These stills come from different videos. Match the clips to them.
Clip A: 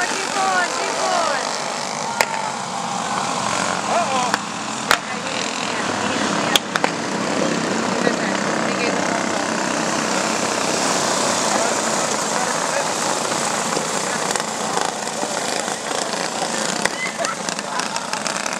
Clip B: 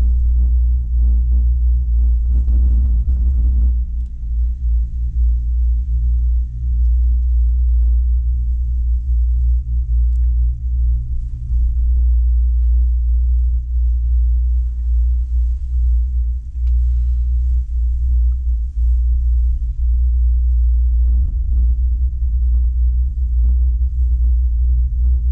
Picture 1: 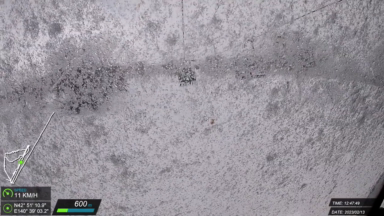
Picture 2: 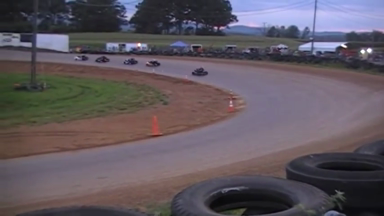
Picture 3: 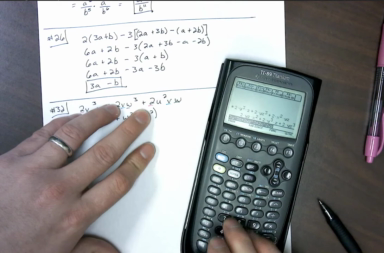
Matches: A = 2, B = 1